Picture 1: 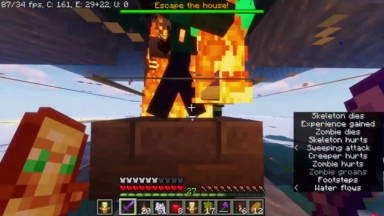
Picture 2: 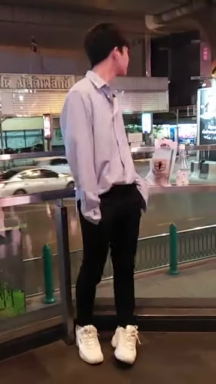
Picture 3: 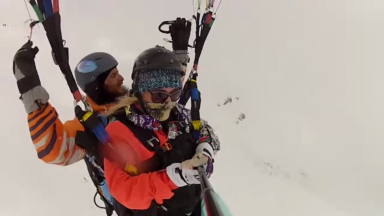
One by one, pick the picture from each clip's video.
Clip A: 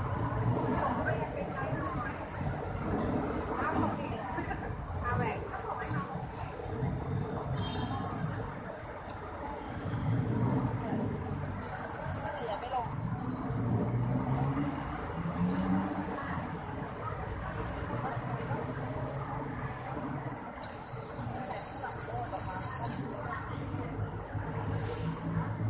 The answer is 2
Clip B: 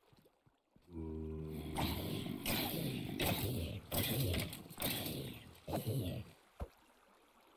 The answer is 1